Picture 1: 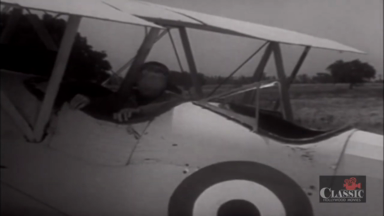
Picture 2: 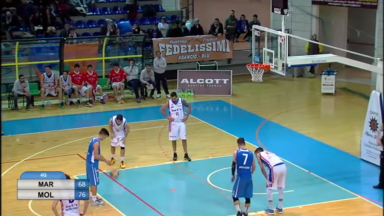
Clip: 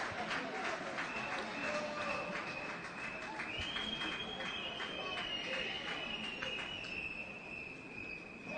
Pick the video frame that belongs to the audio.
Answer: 2